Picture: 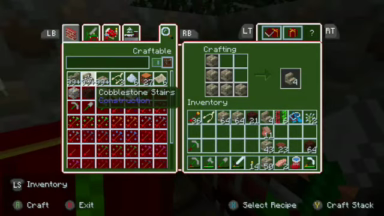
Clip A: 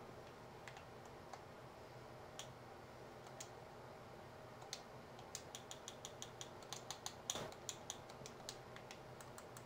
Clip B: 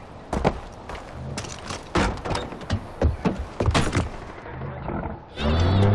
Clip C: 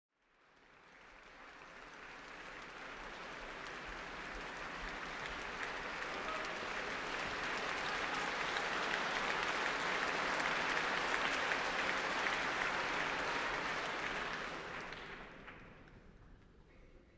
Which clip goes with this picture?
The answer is A